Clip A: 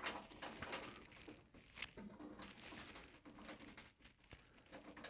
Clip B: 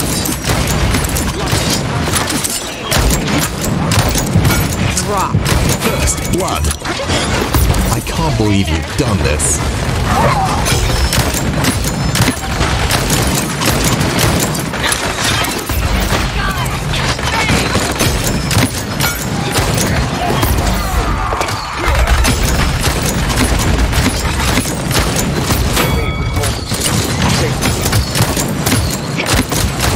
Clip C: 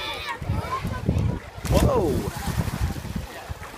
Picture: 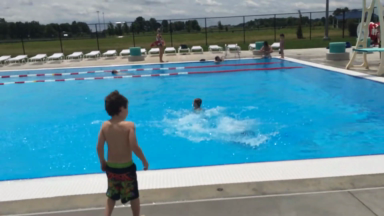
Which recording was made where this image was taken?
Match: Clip C